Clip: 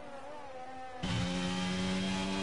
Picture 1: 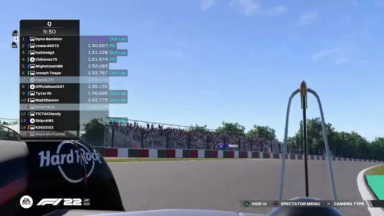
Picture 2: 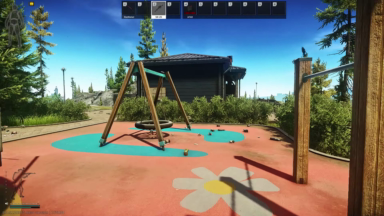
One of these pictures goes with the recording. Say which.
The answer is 1